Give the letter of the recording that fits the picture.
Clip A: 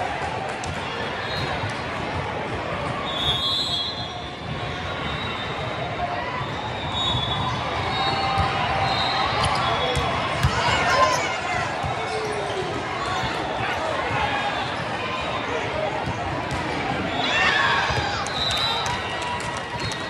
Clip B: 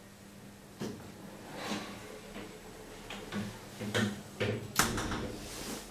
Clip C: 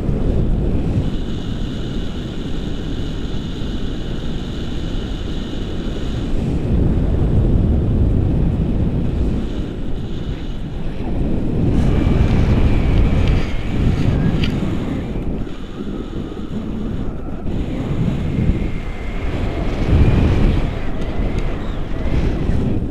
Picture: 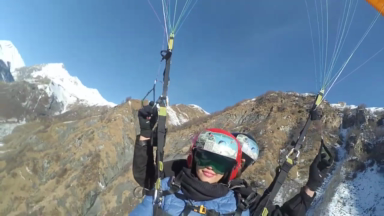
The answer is C